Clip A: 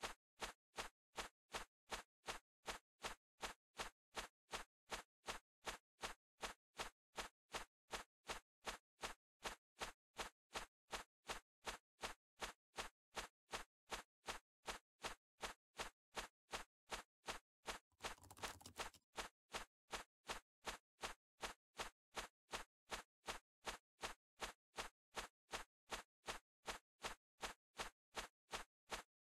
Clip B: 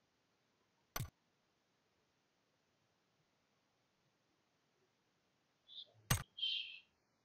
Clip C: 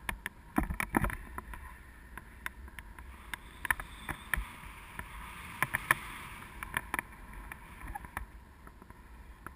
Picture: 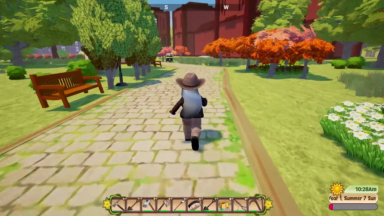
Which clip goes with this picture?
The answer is A